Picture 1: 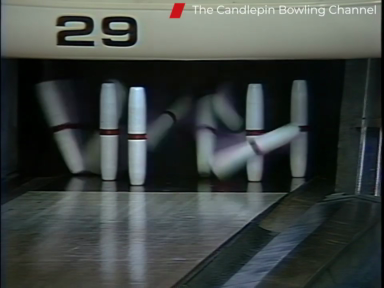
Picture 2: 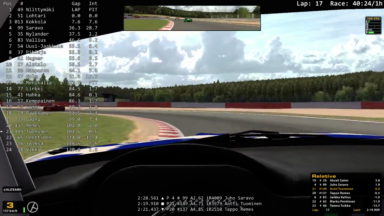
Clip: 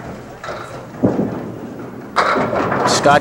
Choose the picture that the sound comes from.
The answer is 1